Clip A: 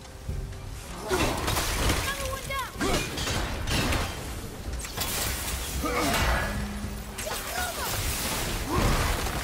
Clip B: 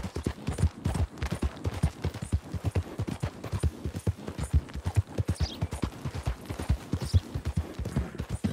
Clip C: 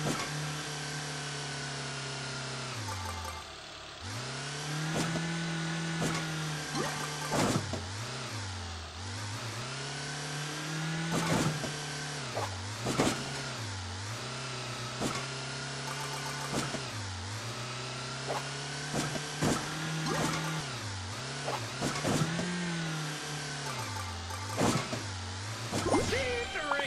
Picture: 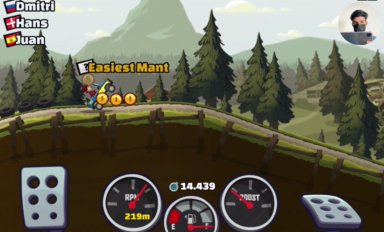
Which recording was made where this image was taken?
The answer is C